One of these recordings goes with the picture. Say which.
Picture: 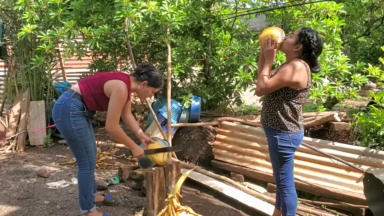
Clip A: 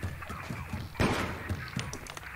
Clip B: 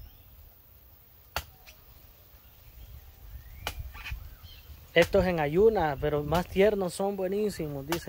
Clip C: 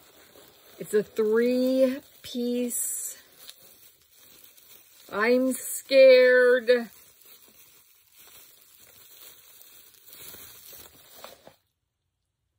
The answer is B